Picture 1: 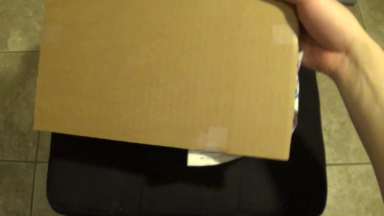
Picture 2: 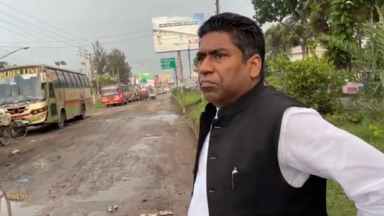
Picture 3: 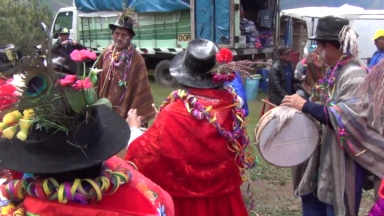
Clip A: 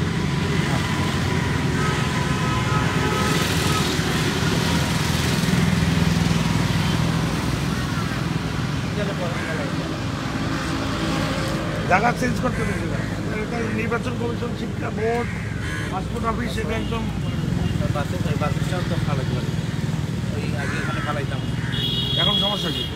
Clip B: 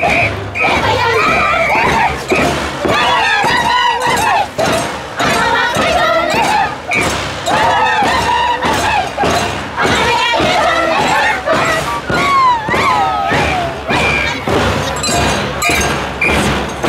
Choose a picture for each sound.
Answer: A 2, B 3